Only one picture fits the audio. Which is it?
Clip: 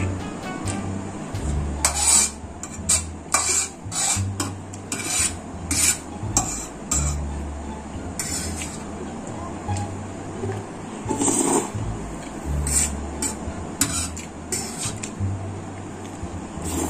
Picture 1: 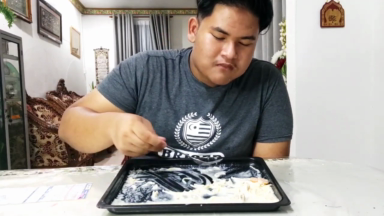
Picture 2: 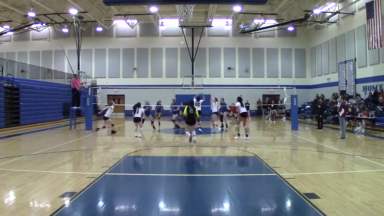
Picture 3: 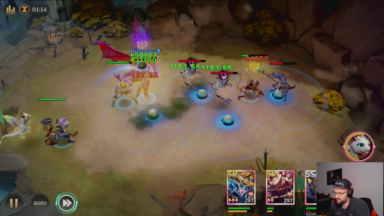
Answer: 1